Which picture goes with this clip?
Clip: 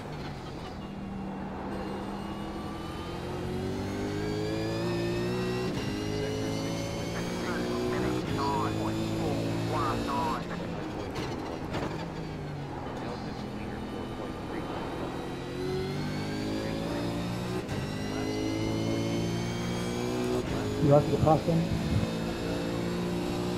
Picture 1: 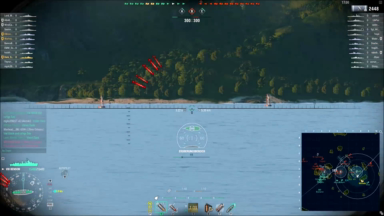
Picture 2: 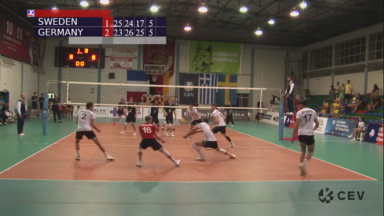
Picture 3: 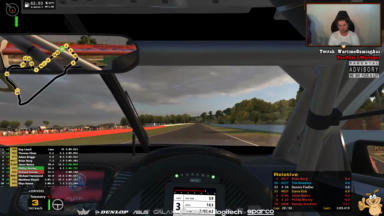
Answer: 3